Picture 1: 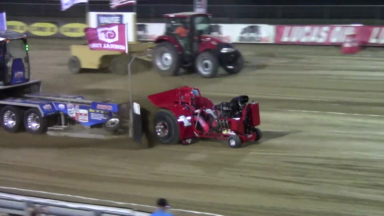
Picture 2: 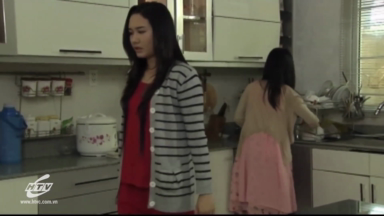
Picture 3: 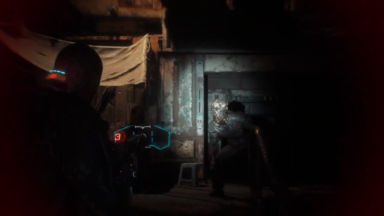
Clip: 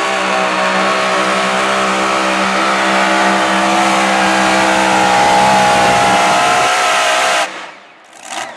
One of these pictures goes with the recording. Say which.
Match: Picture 1